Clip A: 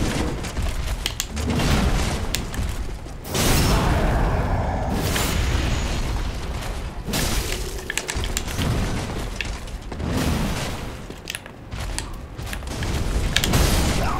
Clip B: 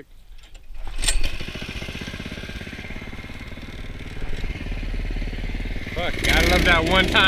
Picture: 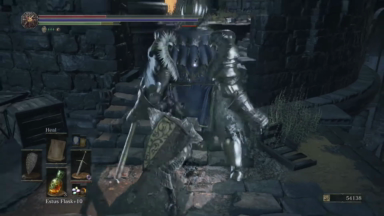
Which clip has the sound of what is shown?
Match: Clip A